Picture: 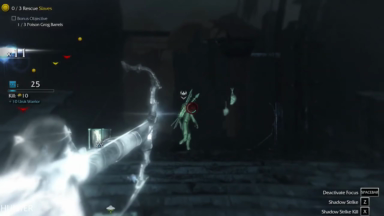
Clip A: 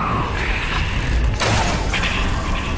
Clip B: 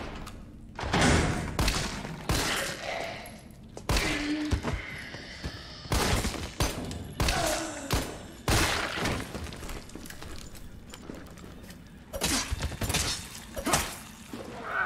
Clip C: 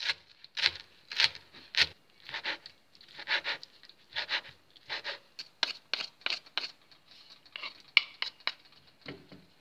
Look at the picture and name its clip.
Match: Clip A